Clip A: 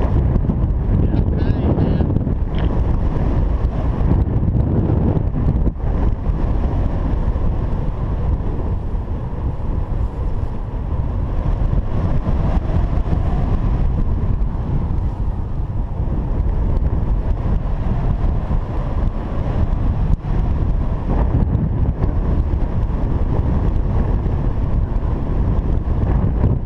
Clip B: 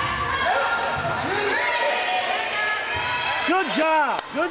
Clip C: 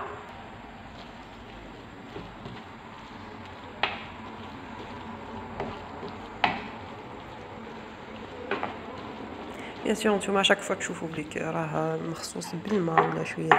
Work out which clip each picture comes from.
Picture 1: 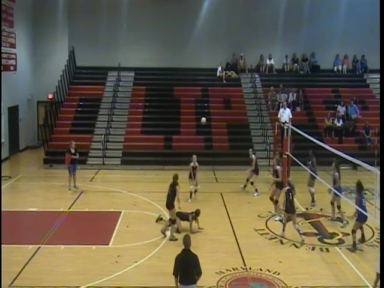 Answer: B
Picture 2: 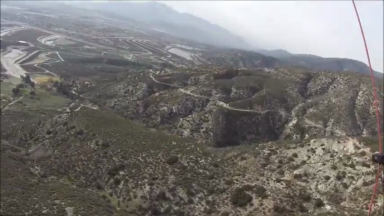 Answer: A